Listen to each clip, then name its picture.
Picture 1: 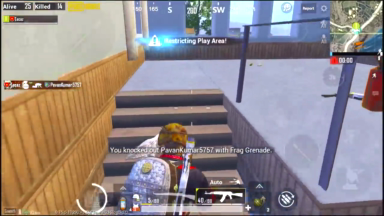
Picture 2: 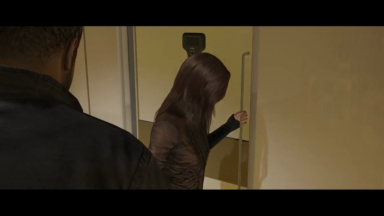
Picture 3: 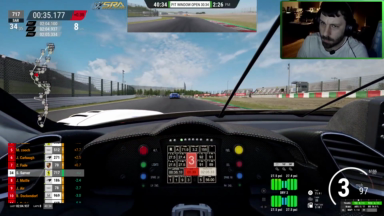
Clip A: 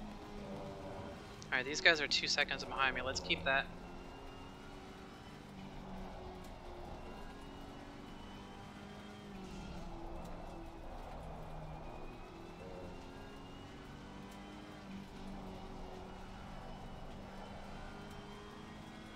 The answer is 3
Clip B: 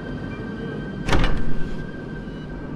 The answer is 2